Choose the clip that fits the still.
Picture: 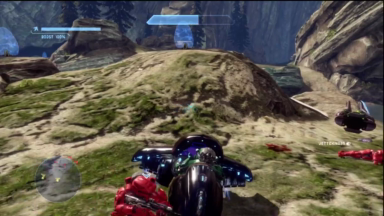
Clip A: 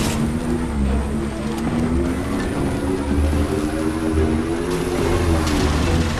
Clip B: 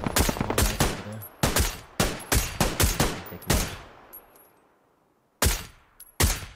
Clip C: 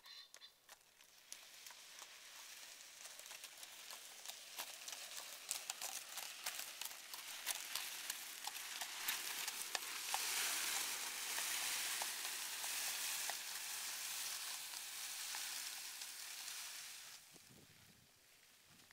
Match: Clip A